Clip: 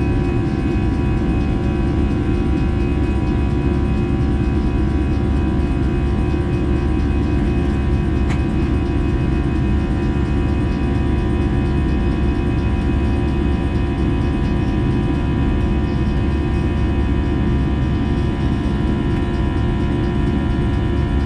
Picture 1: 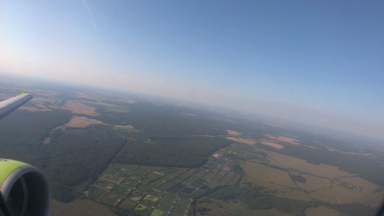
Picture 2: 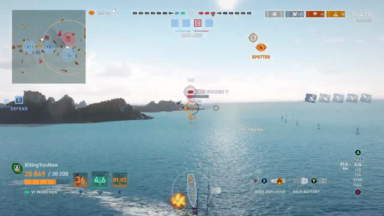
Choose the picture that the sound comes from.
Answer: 1